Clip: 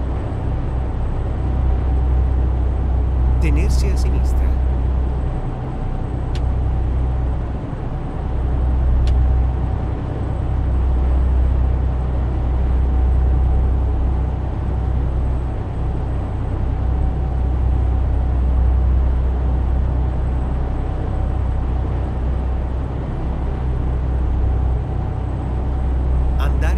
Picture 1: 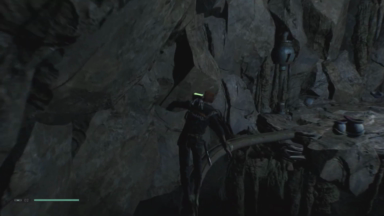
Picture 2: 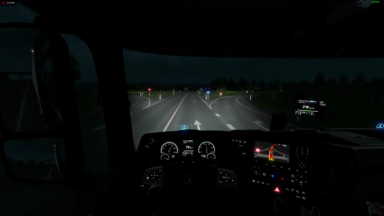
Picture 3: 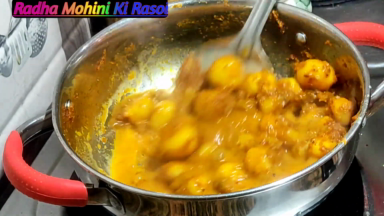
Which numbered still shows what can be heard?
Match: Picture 2